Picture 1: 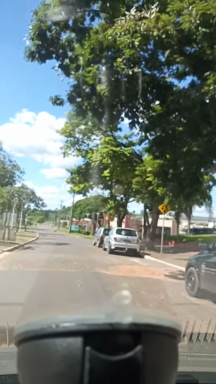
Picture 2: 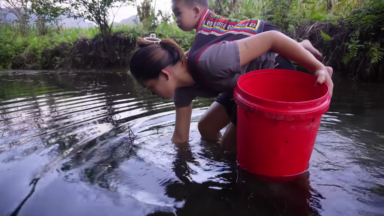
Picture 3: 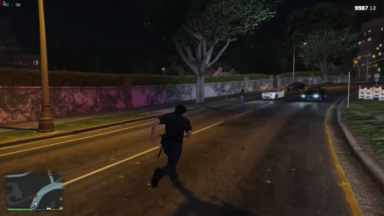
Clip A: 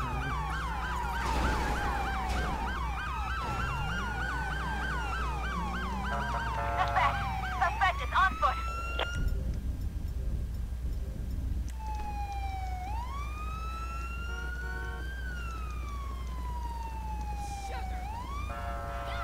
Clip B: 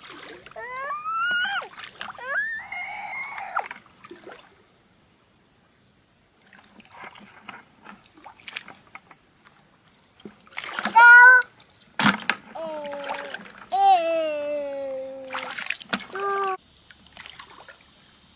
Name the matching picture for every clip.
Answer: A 3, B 2